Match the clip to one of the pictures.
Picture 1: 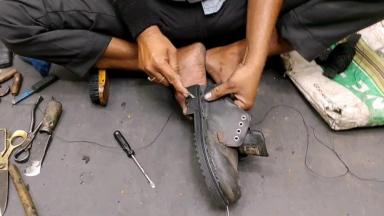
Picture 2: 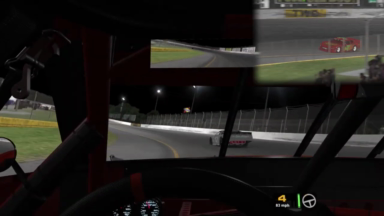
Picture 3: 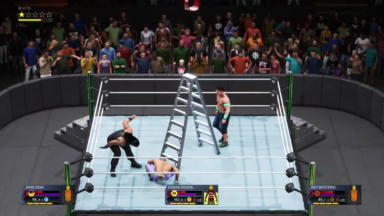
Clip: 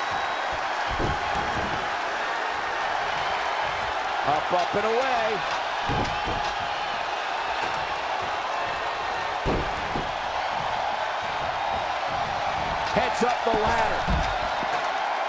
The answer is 3